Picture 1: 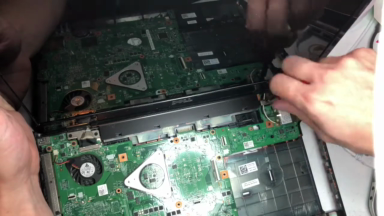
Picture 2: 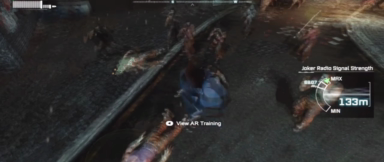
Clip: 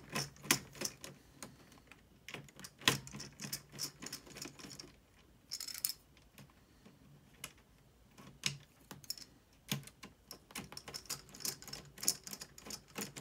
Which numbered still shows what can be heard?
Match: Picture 1